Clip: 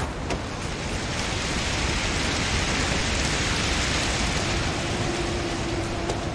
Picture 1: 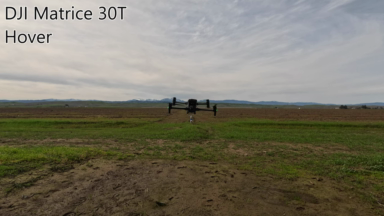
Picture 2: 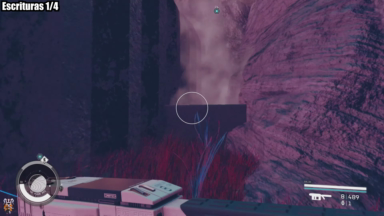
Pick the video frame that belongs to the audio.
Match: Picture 2